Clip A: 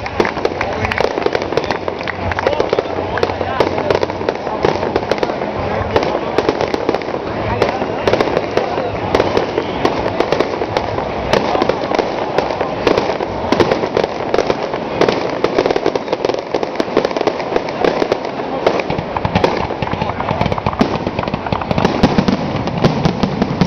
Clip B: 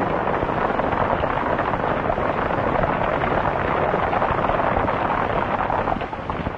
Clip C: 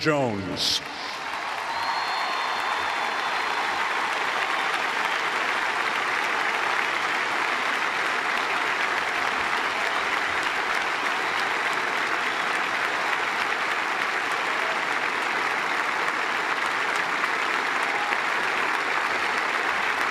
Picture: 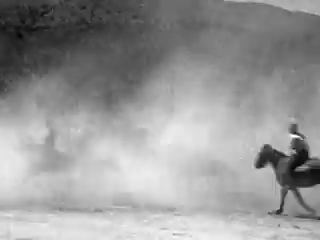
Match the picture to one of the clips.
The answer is B